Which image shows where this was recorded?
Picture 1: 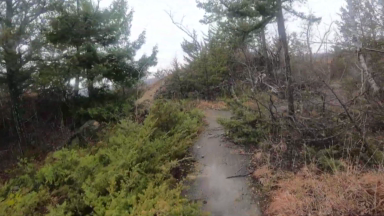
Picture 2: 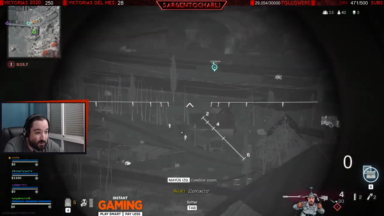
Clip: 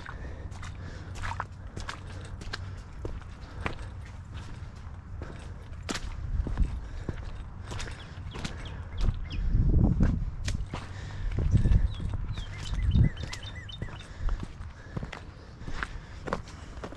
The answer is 1